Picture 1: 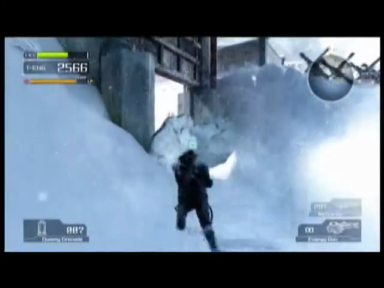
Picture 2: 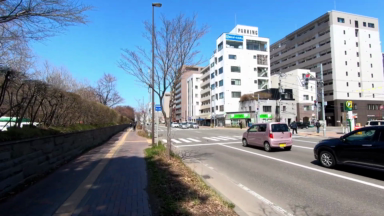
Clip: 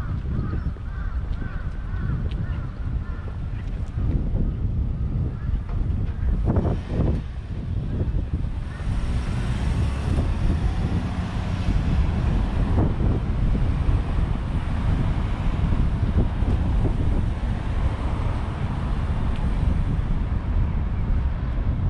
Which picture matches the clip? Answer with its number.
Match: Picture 2